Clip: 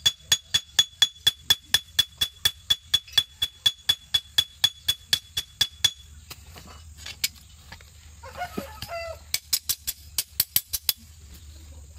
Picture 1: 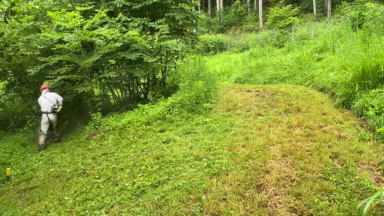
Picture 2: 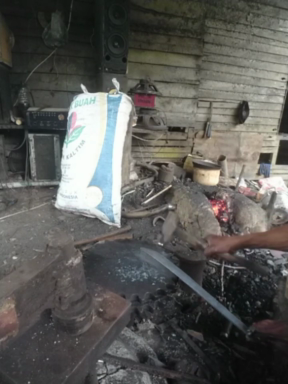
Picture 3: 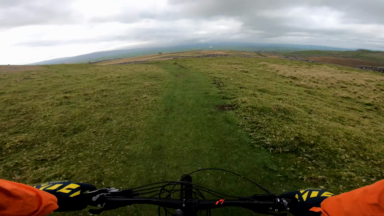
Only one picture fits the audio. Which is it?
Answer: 2